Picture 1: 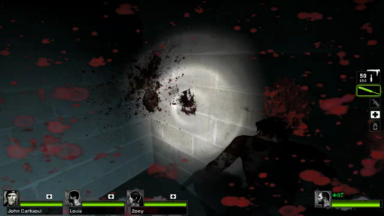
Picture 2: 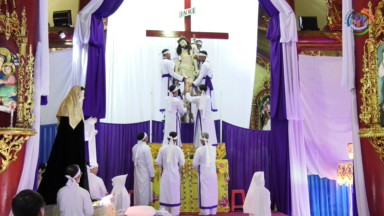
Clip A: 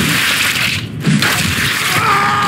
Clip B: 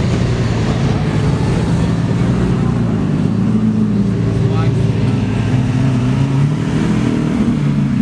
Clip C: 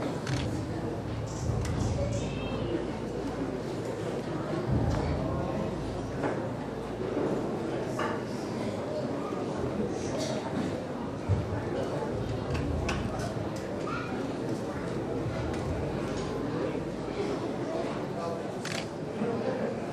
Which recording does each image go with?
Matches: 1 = A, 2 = C